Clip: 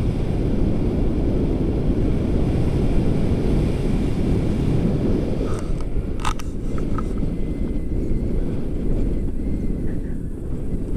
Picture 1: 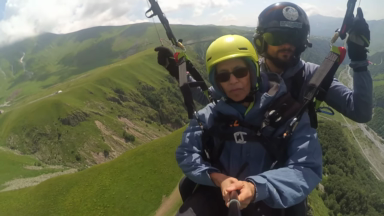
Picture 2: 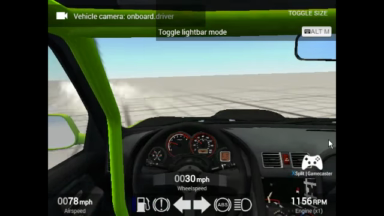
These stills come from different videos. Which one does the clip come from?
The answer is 1